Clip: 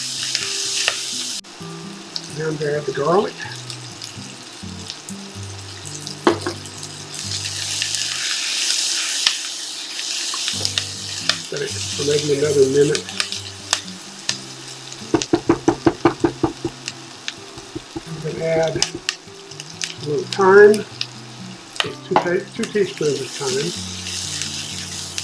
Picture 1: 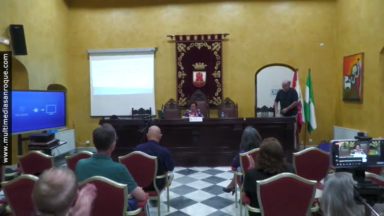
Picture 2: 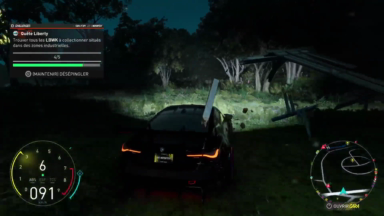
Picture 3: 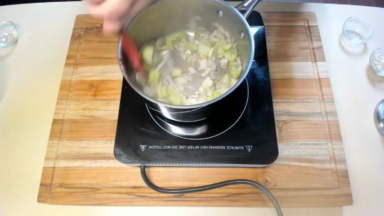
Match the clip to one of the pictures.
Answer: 3